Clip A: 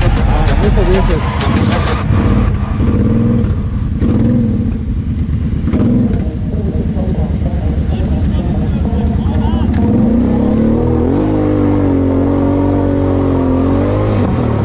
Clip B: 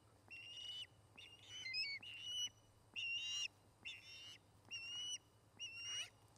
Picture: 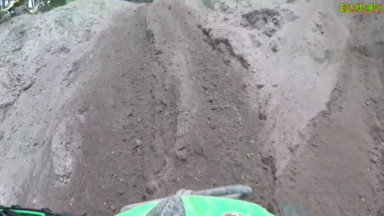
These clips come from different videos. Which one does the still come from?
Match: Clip A